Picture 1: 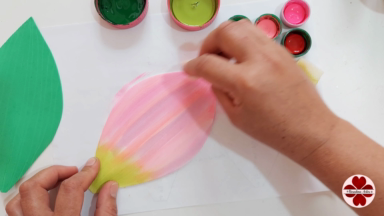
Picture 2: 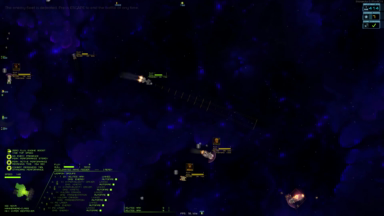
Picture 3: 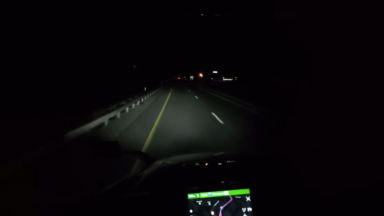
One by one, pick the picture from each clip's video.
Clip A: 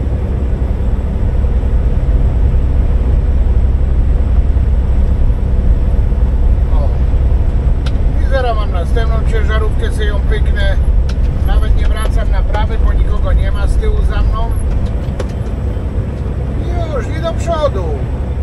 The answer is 3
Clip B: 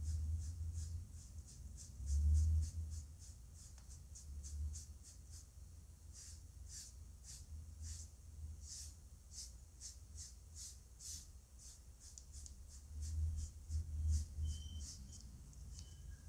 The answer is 1